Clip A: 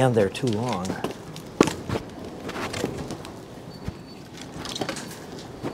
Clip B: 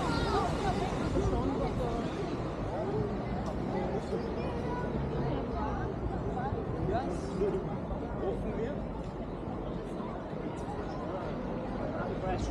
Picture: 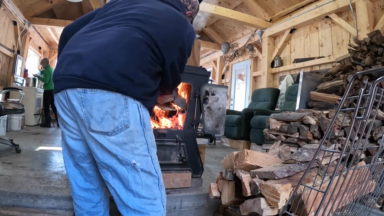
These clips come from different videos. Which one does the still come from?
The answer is A